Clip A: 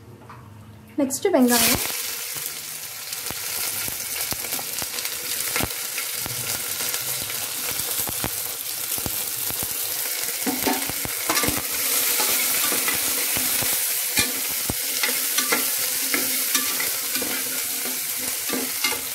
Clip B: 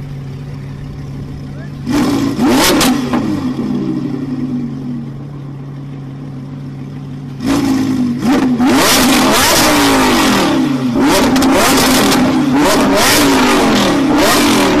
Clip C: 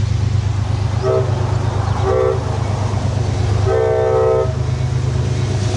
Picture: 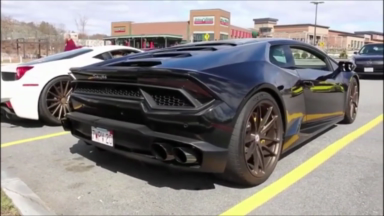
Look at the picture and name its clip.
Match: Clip B